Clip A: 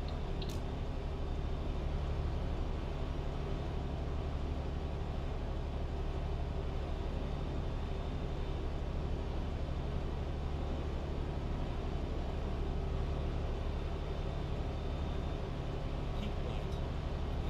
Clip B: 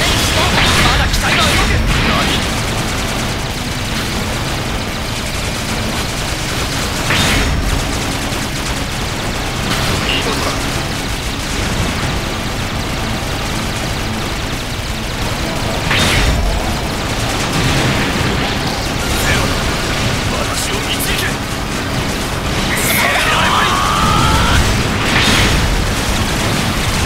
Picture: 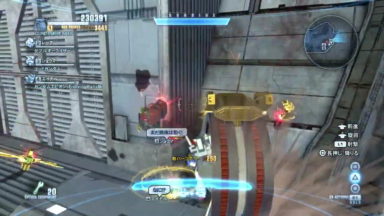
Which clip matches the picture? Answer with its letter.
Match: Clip B